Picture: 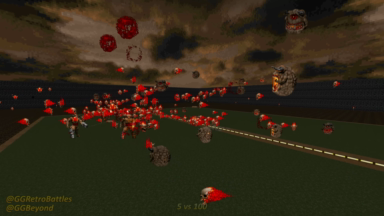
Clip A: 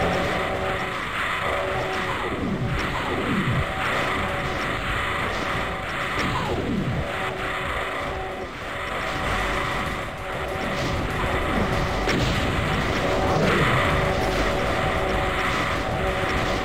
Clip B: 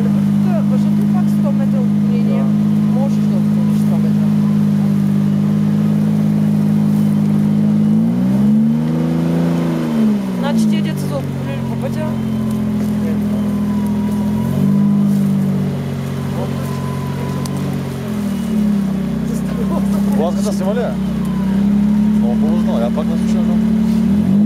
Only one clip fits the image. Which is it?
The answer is A